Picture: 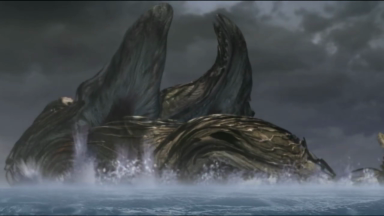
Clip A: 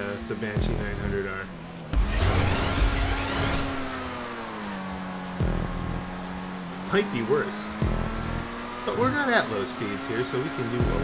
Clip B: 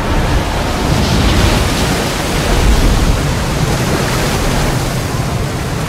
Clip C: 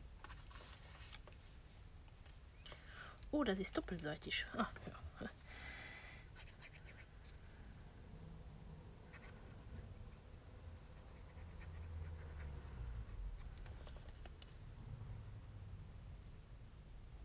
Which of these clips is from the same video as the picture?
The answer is B